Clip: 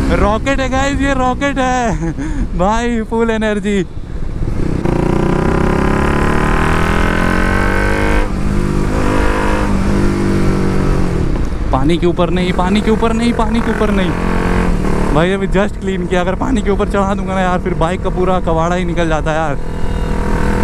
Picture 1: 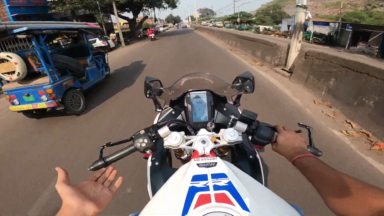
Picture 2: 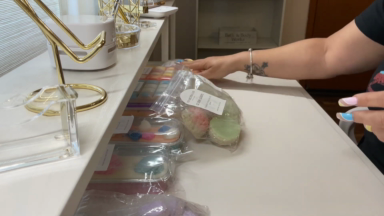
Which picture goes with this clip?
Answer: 1